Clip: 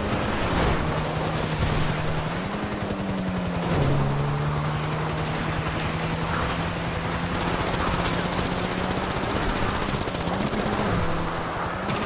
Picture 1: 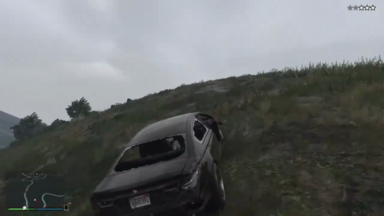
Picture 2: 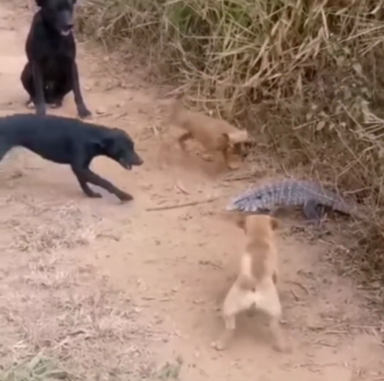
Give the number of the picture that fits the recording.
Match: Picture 1